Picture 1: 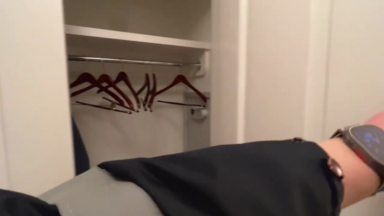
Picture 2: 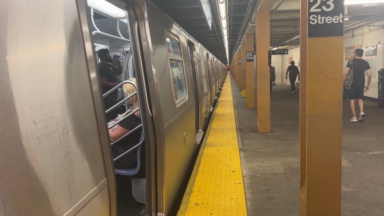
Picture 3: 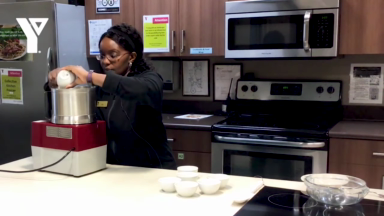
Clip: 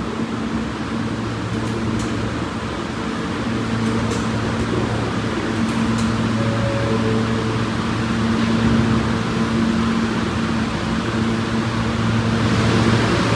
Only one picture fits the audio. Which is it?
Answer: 2